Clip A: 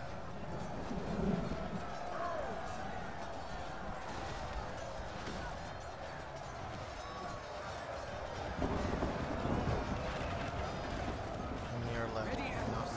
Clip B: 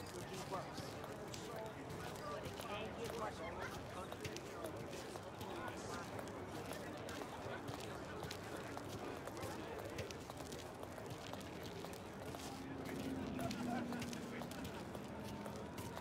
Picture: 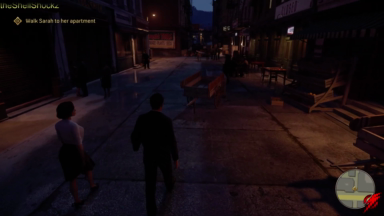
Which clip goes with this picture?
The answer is B